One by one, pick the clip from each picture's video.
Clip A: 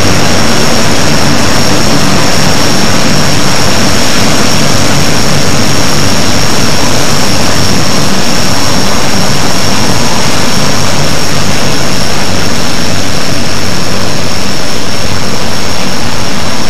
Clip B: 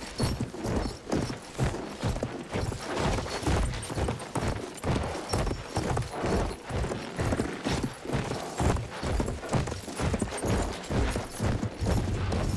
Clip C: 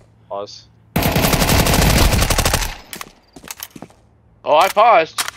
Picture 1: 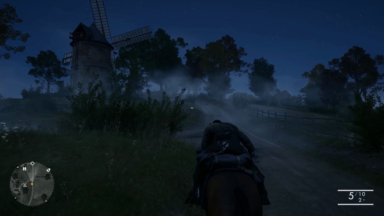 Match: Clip B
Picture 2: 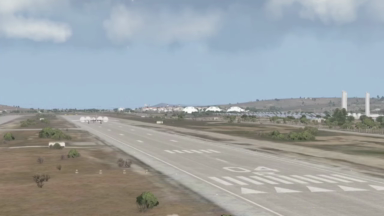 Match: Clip A